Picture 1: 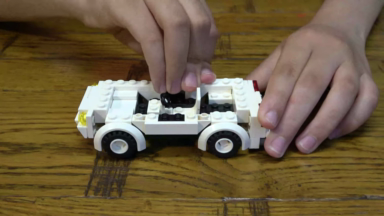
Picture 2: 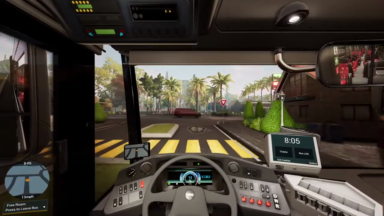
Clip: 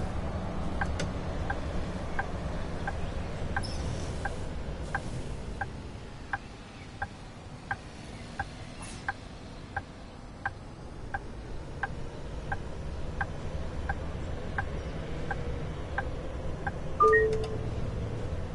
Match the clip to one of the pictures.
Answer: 2